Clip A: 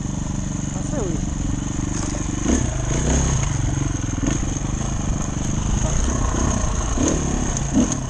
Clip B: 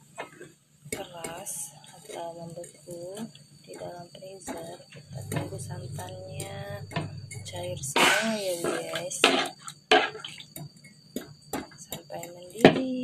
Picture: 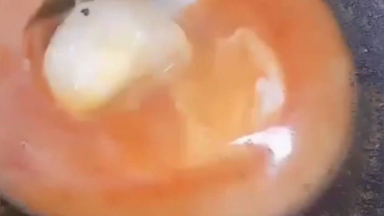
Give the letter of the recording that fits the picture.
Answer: B